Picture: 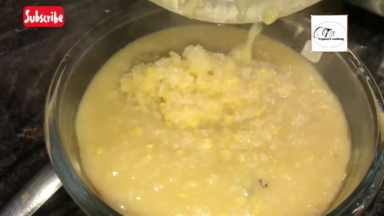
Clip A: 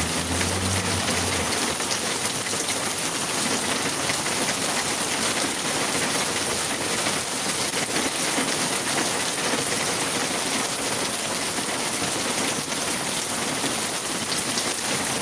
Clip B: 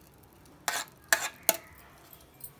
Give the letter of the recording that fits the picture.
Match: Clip B